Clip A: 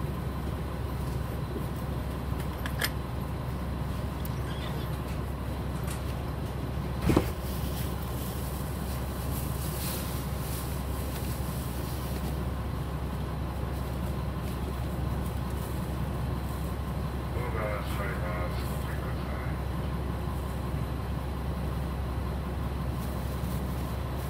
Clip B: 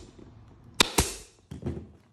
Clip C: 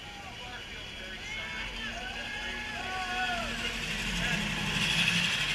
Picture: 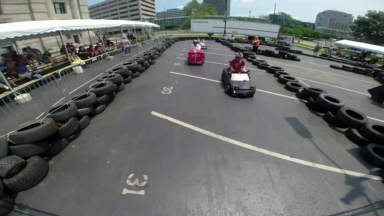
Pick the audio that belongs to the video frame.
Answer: C